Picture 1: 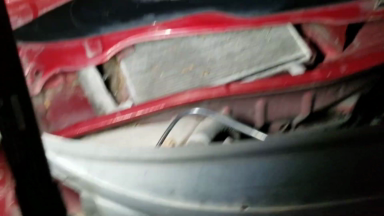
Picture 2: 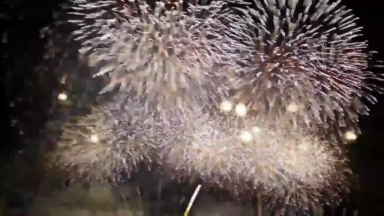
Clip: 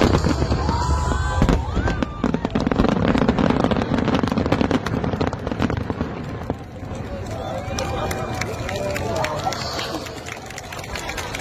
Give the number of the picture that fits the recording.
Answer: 2